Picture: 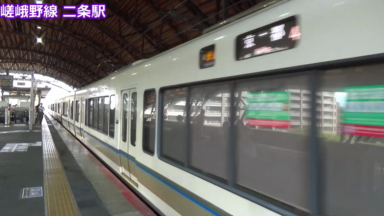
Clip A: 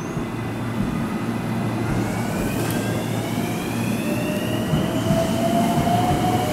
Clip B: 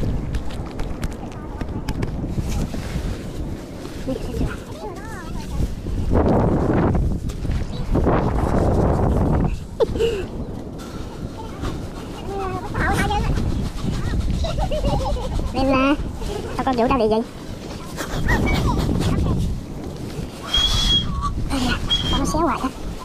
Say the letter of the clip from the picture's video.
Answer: A